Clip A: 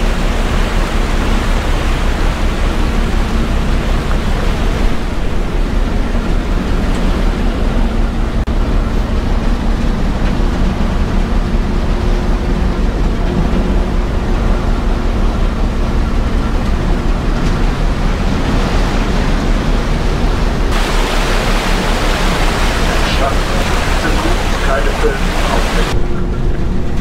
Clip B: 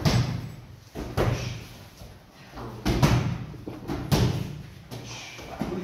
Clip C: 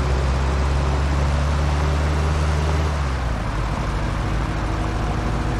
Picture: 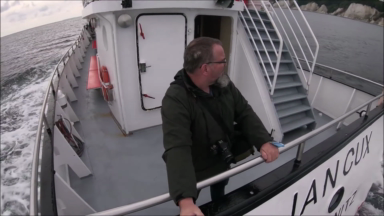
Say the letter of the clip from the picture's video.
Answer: A